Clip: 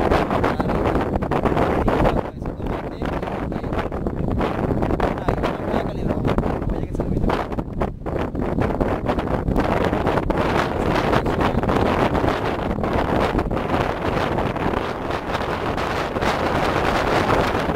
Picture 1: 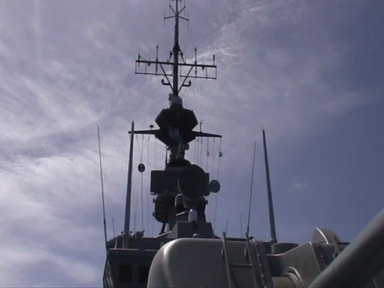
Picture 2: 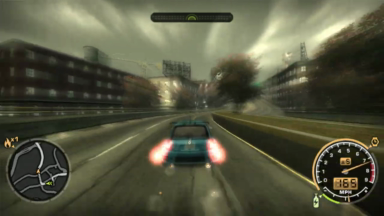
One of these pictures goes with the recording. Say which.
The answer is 1